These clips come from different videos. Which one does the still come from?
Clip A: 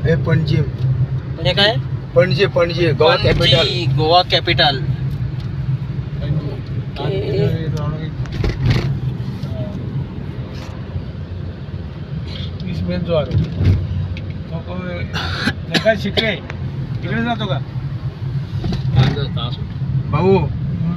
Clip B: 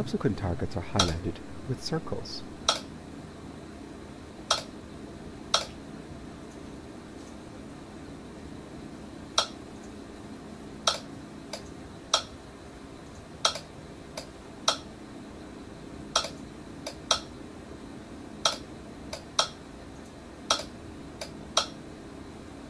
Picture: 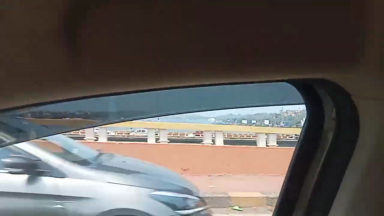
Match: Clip A